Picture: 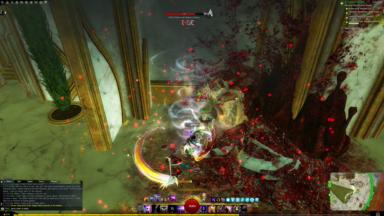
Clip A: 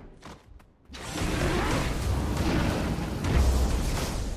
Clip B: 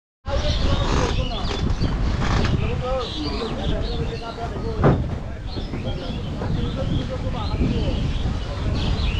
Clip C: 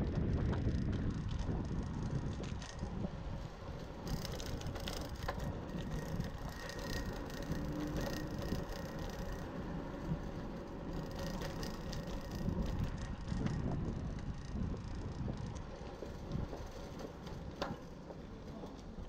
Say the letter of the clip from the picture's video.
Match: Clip A